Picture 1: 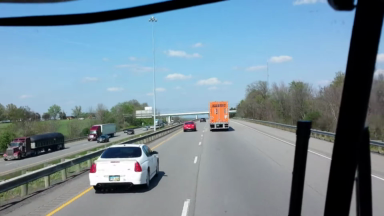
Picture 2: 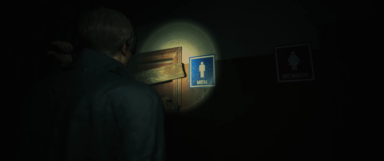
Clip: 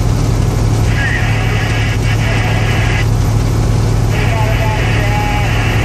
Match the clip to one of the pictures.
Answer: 1